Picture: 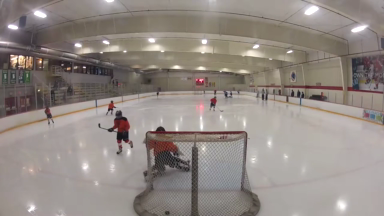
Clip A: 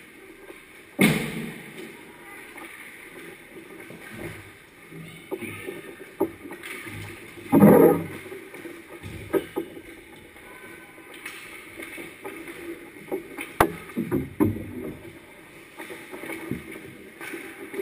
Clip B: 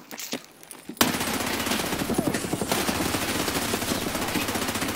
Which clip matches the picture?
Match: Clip A